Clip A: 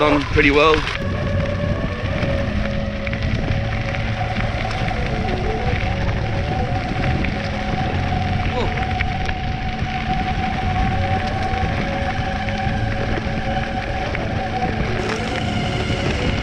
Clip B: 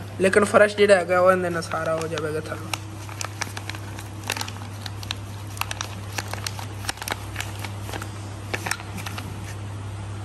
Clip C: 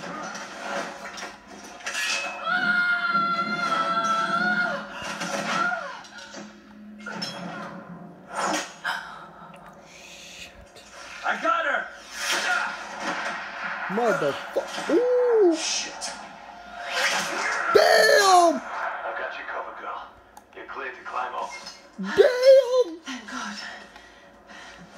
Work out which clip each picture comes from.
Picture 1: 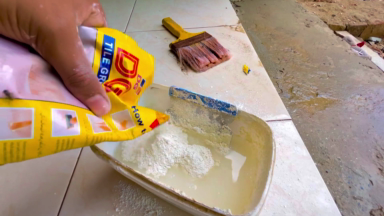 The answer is B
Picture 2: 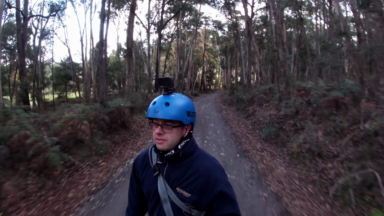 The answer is A